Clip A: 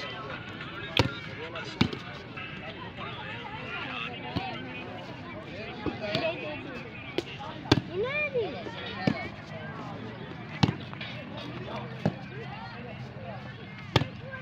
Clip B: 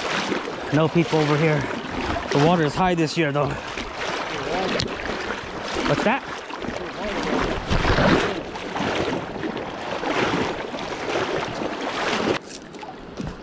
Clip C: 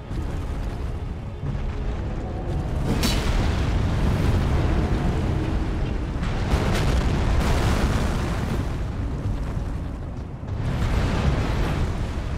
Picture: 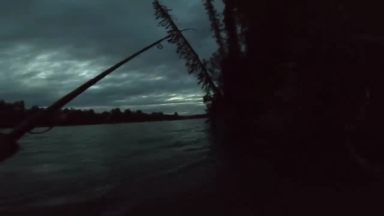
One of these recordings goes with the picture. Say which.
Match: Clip B